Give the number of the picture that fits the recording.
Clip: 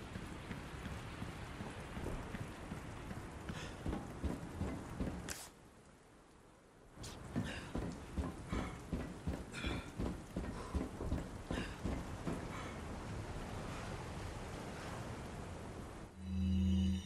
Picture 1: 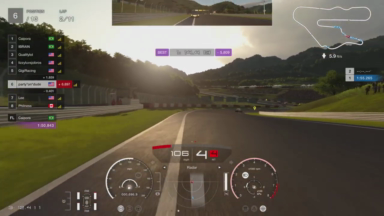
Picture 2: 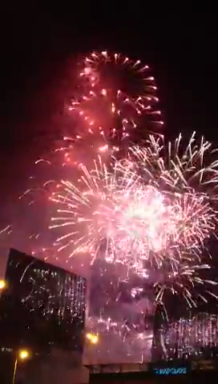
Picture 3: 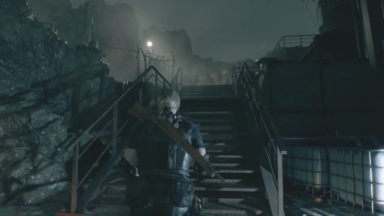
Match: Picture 3